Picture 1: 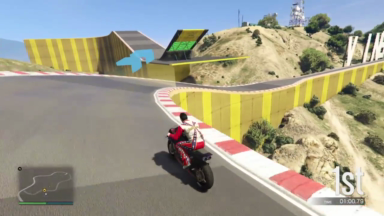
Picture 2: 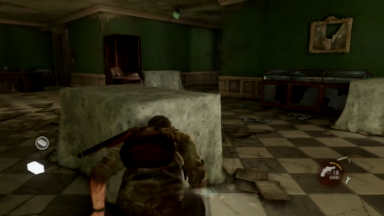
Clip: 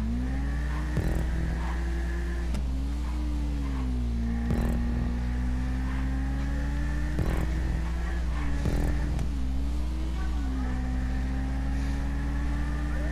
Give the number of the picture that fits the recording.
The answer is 1